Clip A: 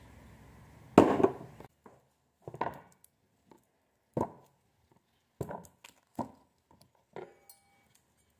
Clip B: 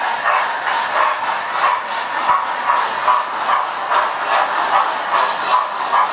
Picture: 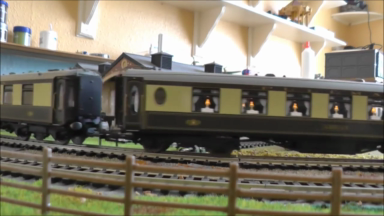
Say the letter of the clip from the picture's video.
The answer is B